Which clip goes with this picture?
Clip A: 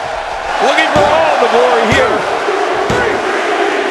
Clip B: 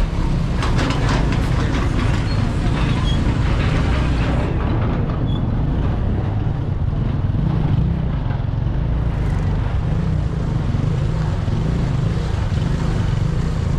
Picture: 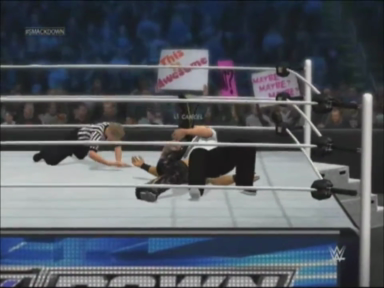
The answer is A